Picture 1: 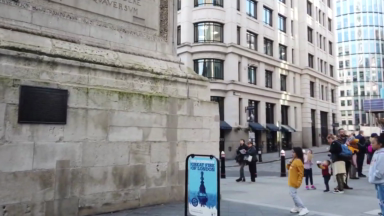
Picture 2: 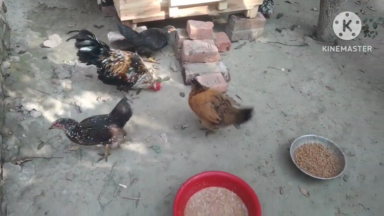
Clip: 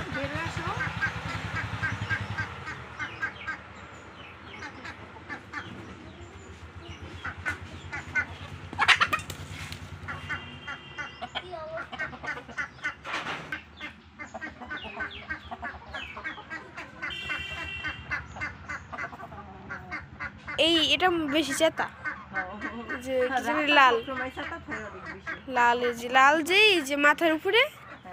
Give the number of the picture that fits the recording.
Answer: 2